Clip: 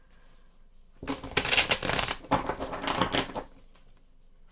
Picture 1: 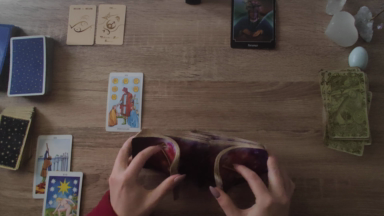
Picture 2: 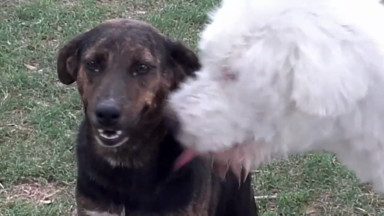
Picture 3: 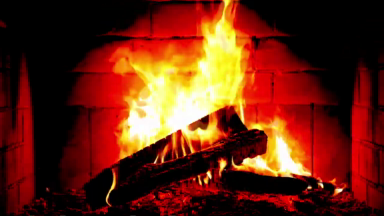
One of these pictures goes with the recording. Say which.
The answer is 1